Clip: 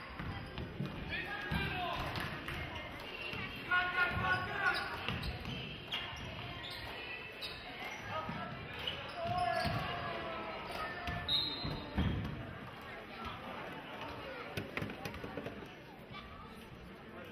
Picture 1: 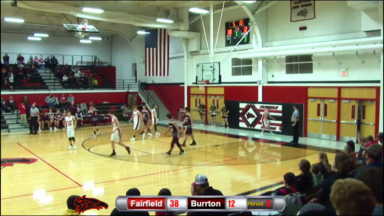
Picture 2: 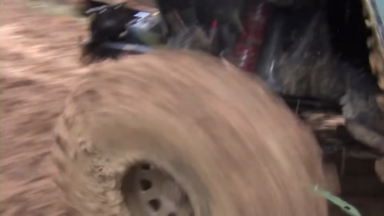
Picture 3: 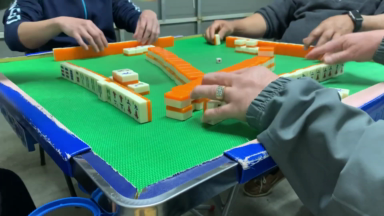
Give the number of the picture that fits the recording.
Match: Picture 1